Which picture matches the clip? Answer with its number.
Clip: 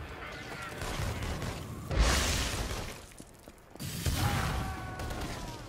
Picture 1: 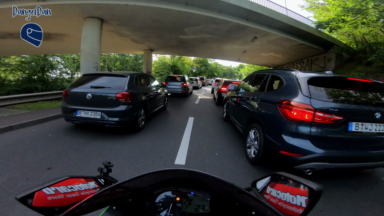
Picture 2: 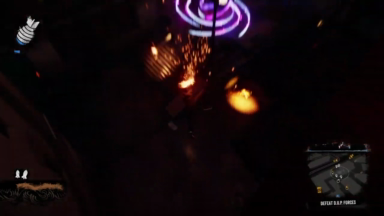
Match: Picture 2